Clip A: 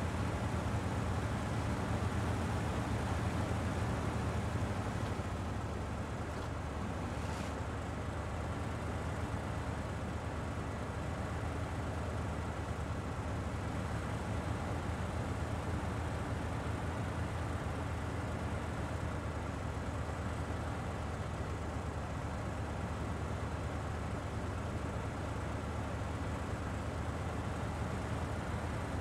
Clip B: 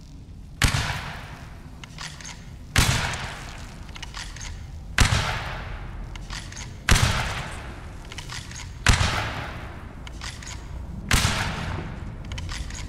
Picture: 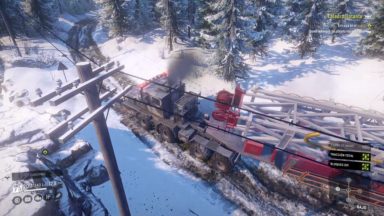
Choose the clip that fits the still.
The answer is A